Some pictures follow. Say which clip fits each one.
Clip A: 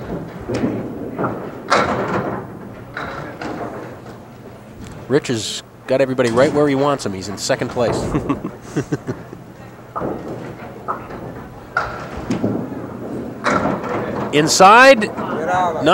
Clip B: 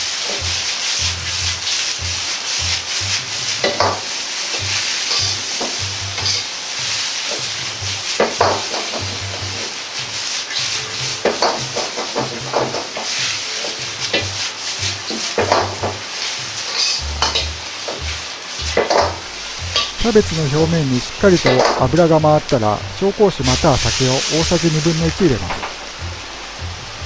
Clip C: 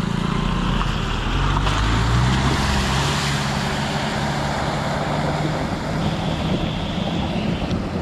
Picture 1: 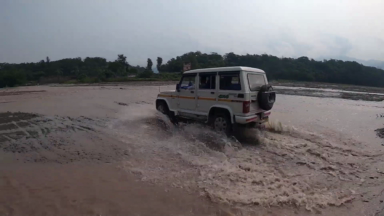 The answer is C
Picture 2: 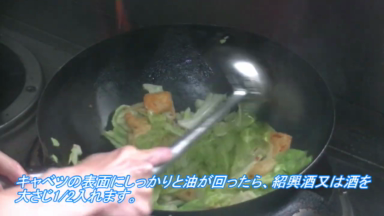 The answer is B